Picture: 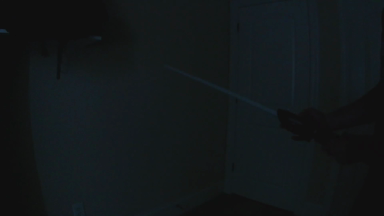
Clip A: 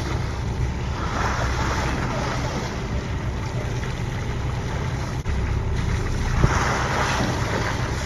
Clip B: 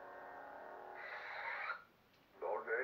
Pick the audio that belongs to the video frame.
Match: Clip B